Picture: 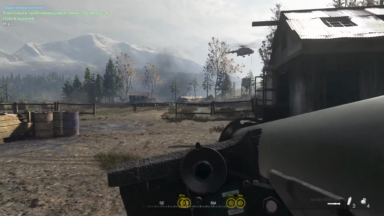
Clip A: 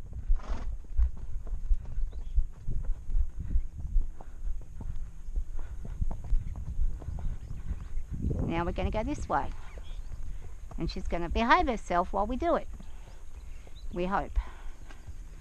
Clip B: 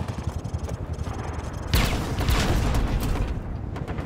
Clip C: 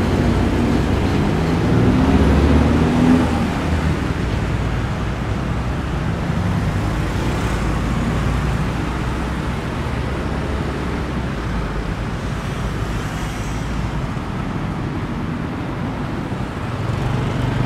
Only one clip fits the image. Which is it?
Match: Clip B